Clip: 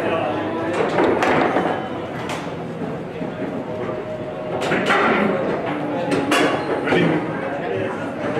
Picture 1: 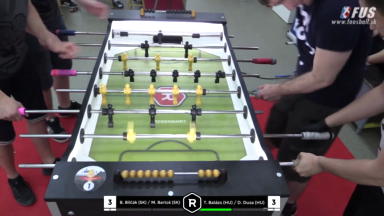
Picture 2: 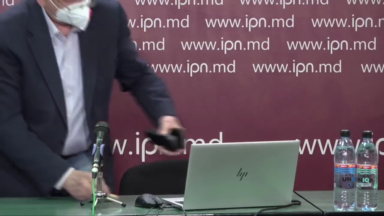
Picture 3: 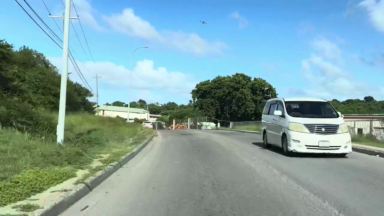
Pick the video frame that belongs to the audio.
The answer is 1